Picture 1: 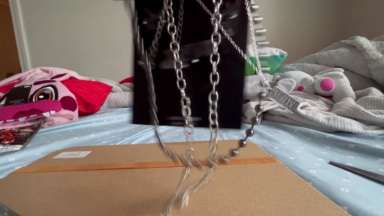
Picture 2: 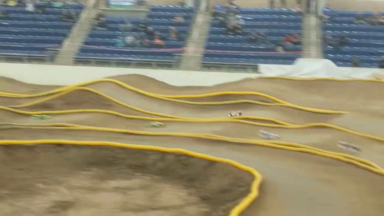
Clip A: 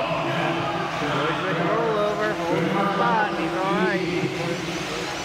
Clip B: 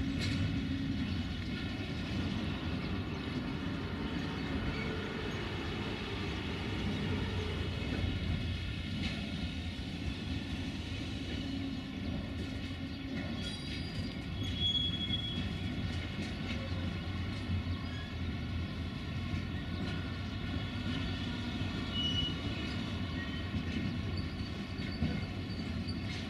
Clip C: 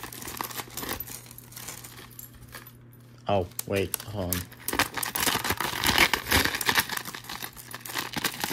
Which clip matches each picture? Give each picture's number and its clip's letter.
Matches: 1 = C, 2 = A